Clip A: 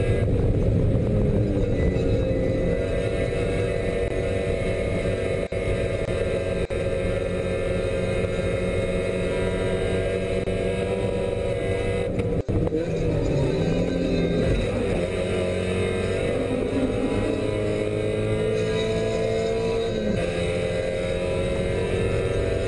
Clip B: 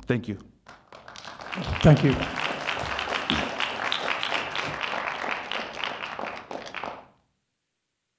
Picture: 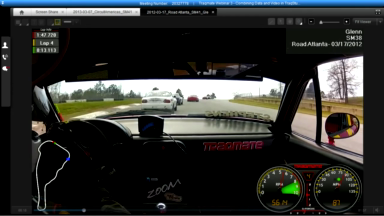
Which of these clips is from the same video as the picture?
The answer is A